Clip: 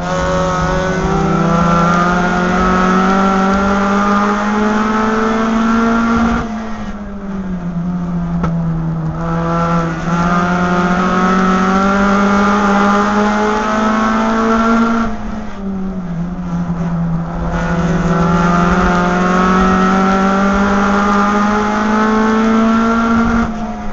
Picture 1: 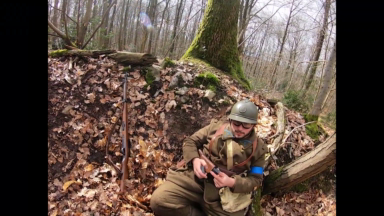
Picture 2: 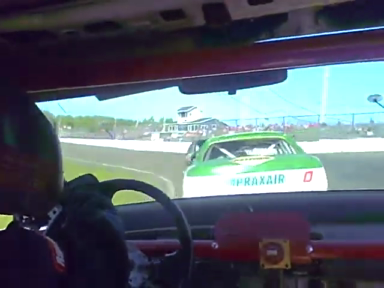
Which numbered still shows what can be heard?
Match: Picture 2